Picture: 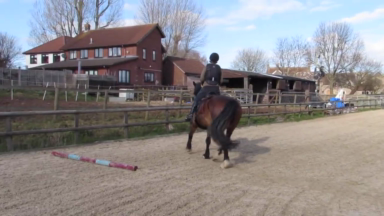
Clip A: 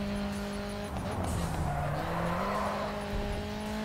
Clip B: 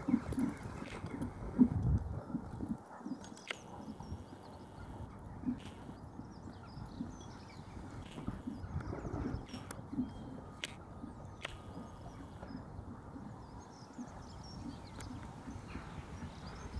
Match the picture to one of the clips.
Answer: B